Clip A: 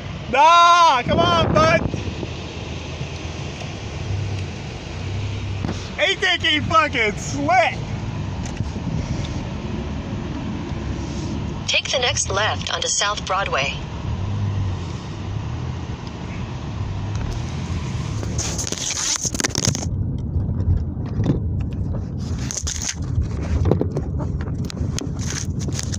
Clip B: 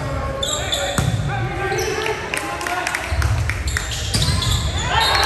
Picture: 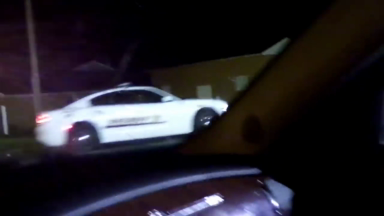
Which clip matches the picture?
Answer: A